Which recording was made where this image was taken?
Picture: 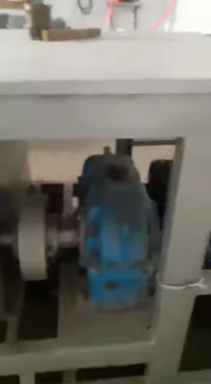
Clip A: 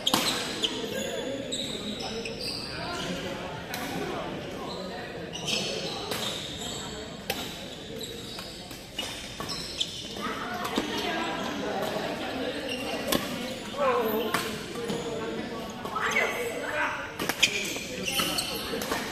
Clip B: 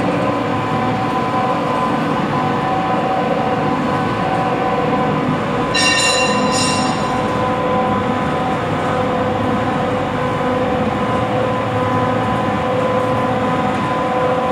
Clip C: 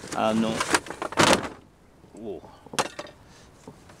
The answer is B